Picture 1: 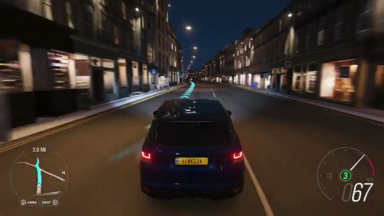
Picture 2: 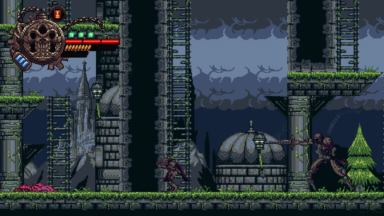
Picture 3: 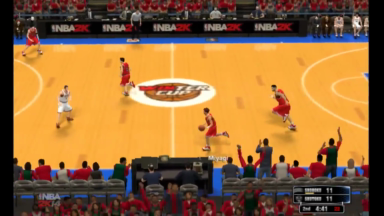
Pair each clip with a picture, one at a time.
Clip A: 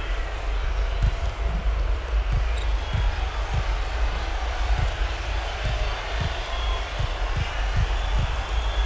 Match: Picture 3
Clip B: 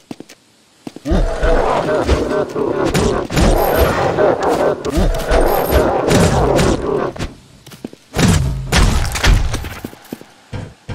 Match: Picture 2